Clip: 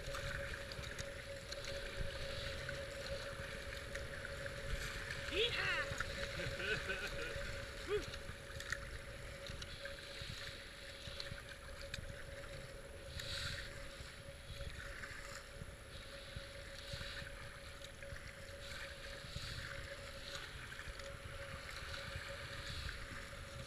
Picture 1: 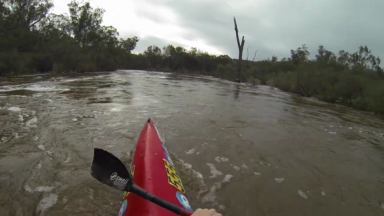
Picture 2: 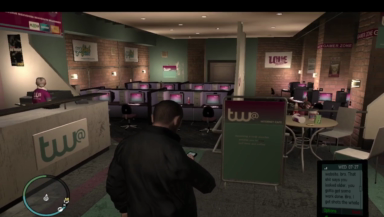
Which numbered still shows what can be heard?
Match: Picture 1